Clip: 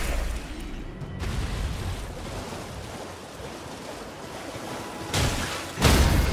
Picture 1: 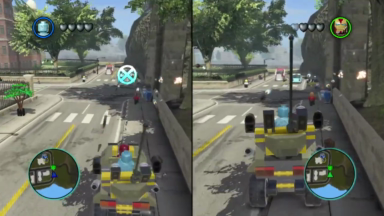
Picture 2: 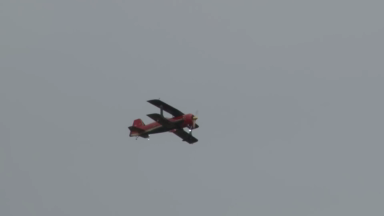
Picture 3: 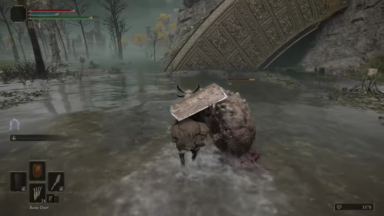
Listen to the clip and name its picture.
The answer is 3